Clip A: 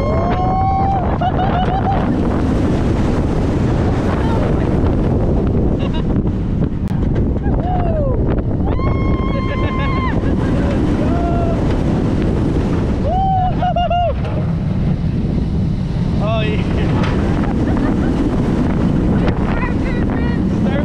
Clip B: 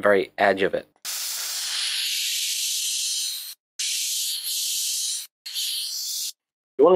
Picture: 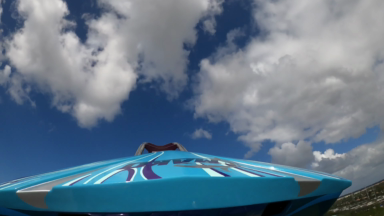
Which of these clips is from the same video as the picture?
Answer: A